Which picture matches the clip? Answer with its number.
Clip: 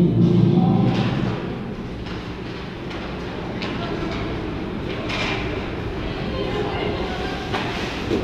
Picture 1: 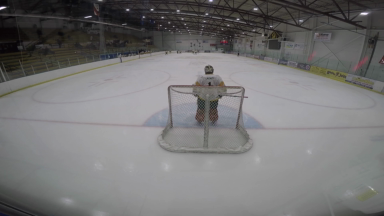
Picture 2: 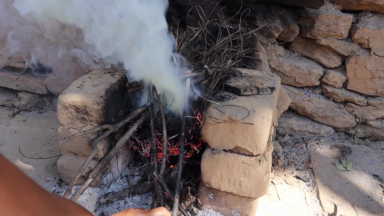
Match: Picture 1